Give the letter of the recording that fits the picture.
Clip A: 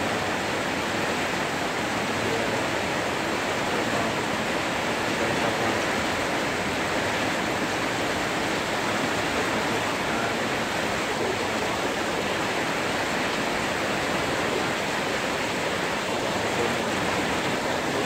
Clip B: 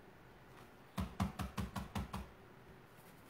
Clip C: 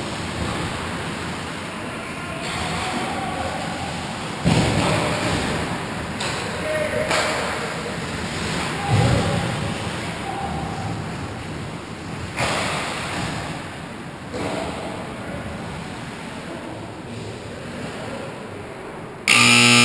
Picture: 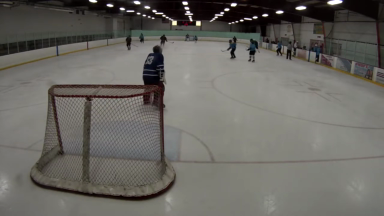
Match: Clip C